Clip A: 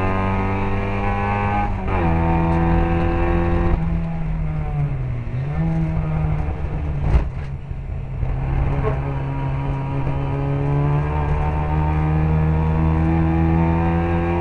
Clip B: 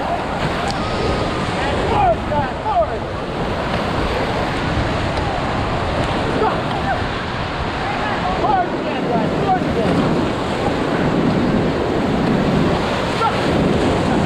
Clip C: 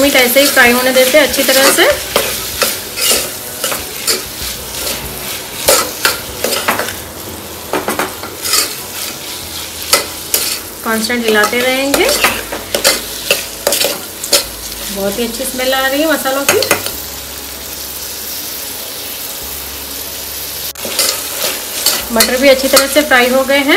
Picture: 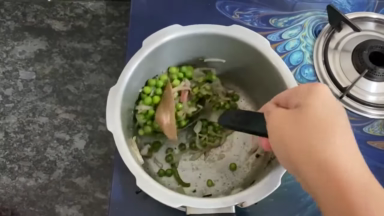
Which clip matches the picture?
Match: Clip C